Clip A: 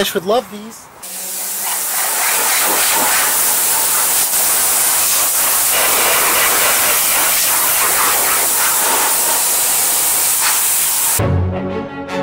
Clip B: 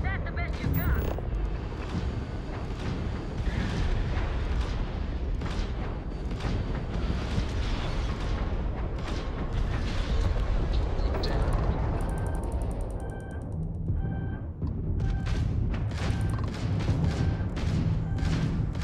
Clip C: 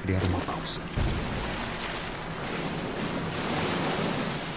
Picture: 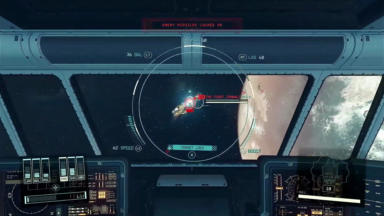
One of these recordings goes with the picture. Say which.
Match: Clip B